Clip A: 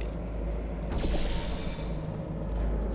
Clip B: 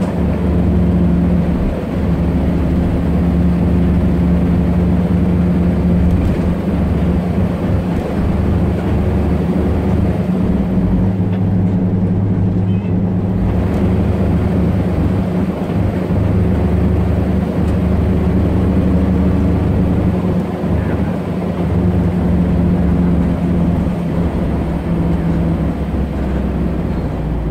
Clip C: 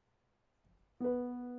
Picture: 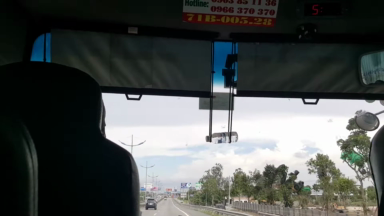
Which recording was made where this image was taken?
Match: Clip B